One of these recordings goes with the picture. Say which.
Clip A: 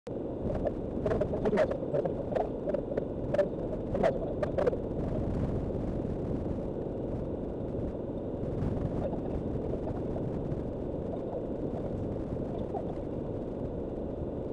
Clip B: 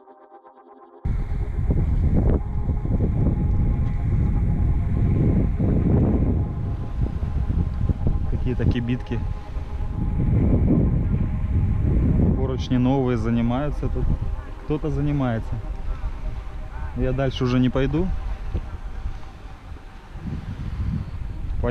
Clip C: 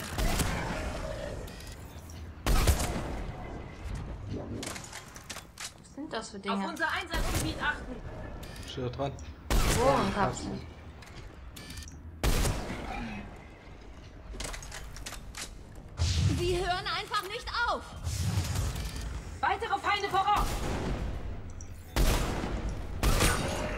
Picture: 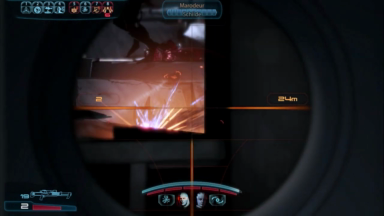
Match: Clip C